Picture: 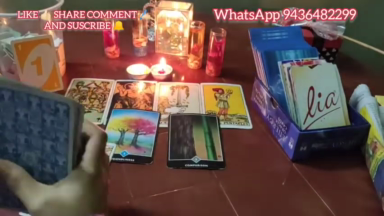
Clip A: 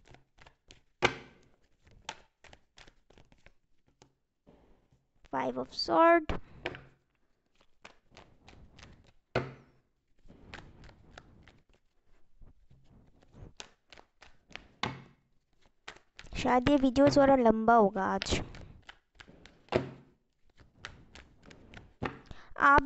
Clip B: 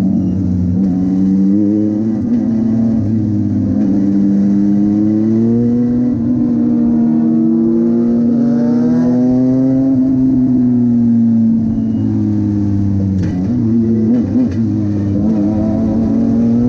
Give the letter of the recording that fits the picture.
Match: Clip A